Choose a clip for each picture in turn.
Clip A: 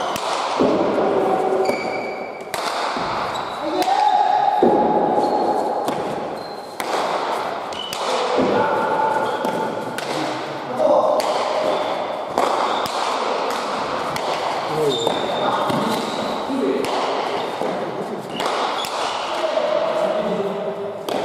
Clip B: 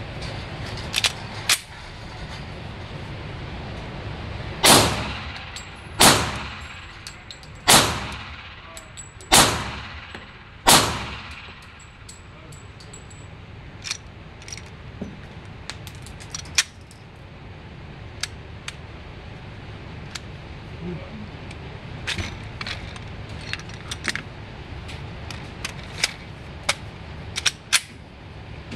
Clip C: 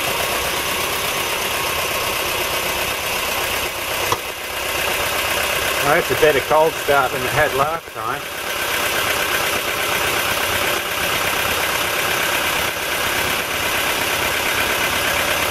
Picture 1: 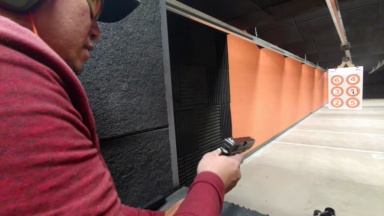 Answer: B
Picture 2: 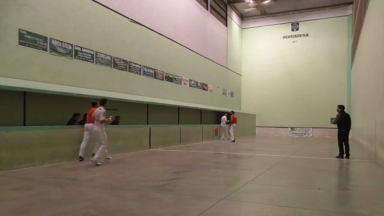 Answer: A